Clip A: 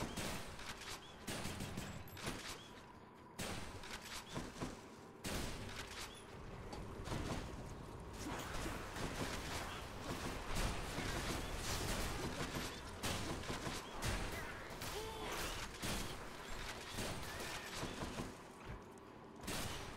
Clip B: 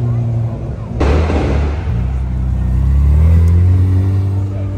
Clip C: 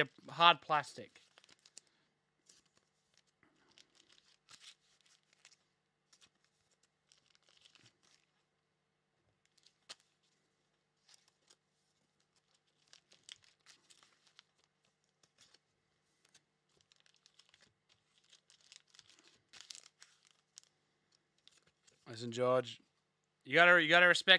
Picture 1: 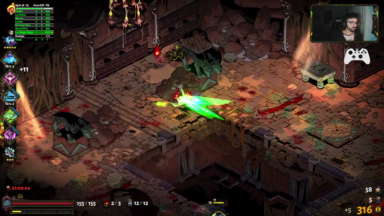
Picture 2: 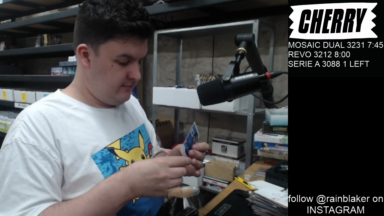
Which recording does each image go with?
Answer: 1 A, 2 C